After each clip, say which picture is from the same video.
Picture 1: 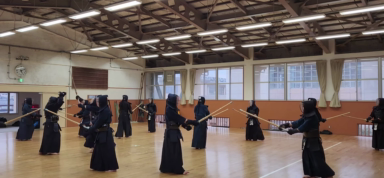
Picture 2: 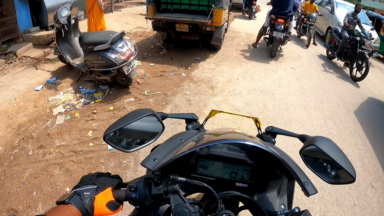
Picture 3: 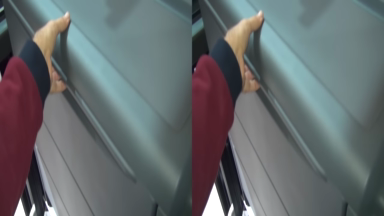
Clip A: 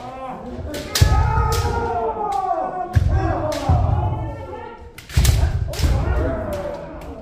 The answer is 1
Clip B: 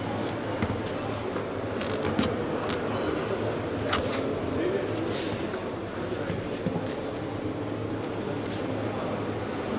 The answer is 3